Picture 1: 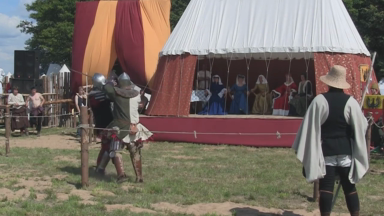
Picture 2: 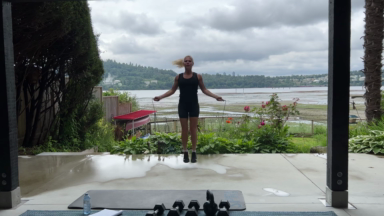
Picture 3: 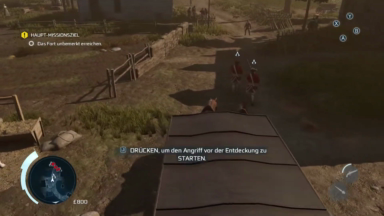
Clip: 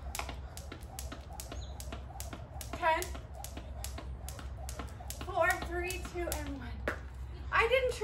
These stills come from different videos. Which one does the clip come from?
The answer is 2